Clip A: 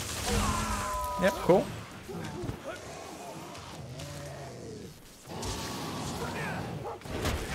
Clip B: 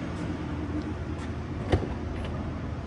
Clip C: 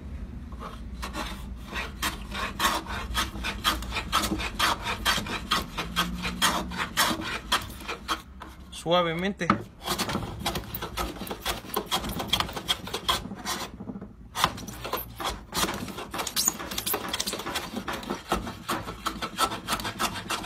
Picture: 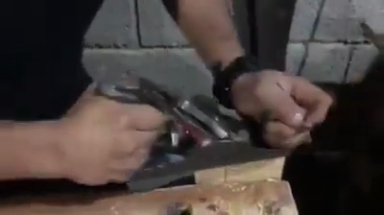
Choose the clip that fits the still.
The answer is C